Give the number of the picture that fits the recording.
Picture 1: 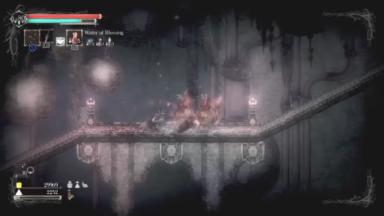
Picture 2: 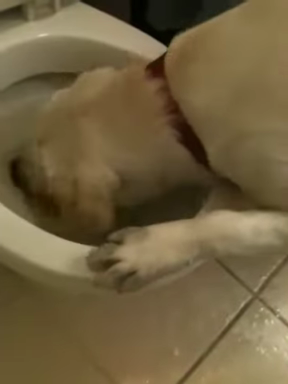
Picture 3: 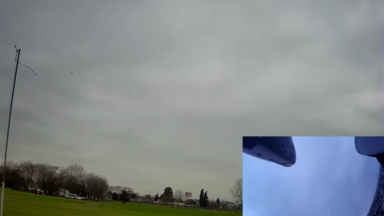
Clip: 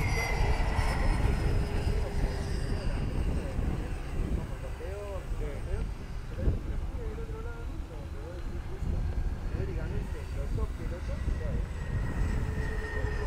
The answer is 3